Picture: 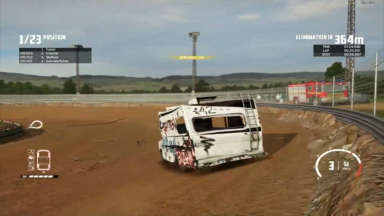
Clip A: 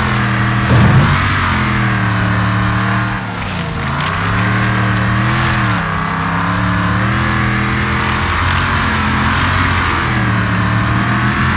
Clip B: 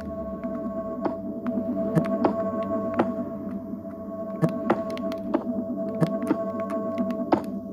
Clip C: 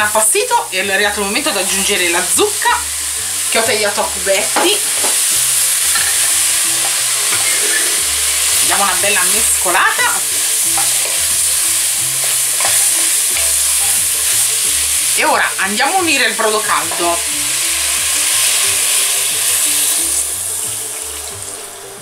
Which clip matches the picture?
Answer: A